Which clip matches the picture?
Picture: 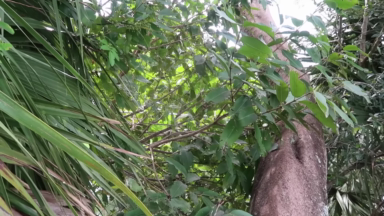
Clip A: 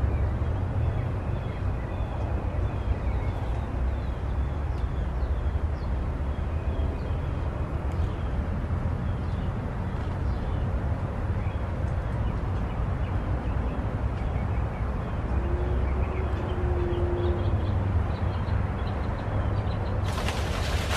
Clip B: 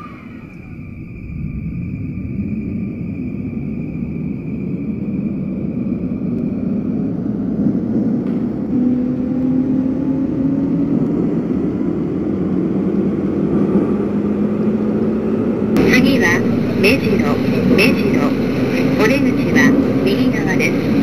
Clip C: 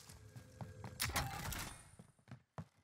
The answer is A